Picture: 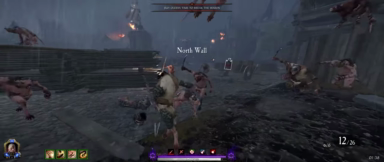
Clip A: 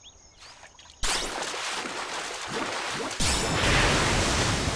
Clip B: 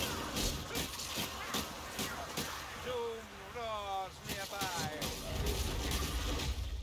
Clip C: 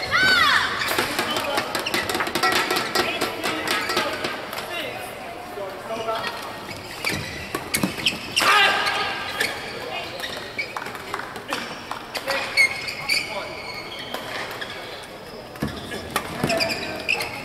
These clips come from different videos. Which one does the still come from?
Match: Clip B